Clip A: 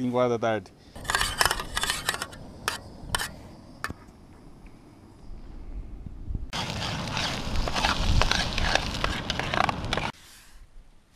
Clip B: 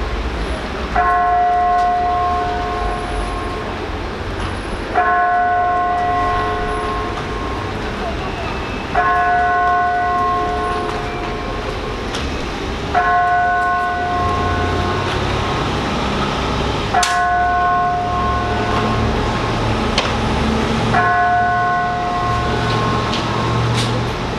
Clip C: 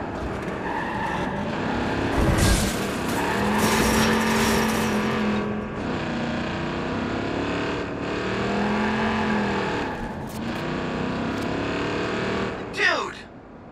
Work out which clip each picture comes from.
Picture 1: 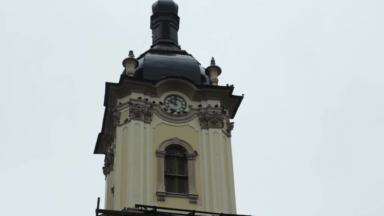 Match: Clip B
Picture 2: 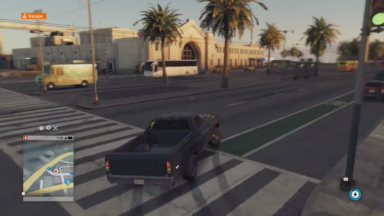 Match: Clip C